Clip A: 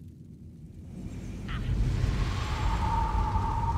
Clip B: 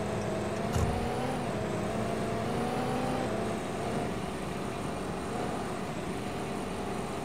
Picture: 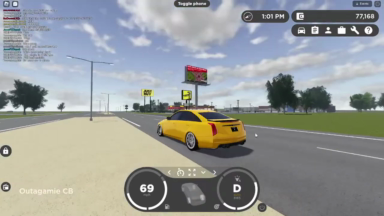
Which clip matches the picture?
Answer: B